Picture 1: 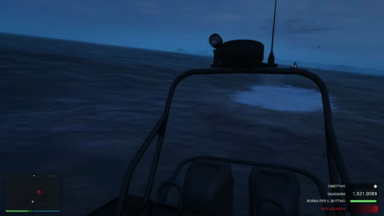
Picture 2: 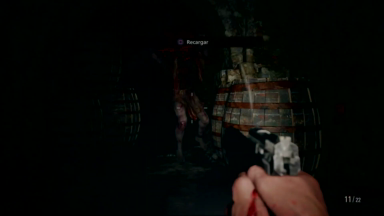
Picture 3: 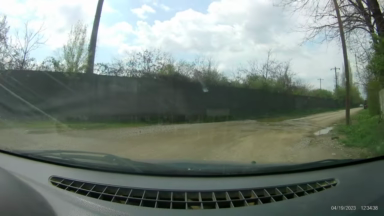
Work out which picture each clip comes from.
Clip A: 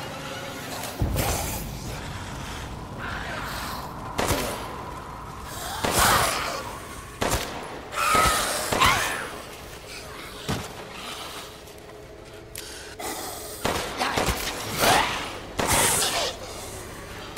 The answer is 2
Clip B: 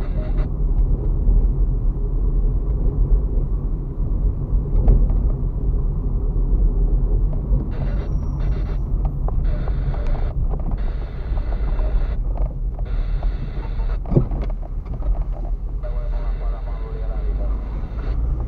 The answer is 3